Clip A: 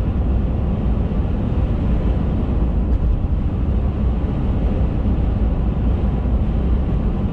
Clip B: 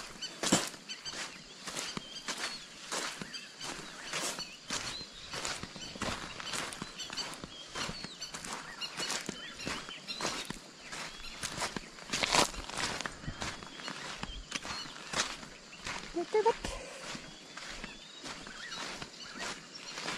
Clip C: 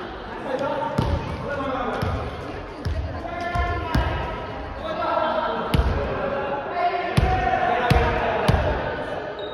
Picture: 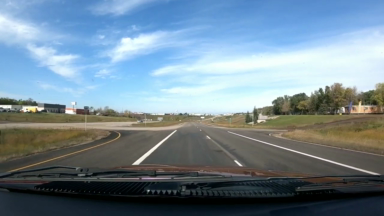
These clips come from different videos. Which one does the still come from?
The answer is A